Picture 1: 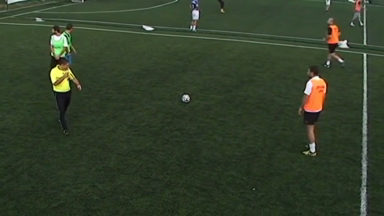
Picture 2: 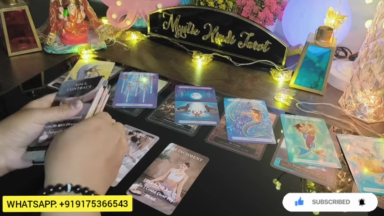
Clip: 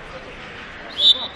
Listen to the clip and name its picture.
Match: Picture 1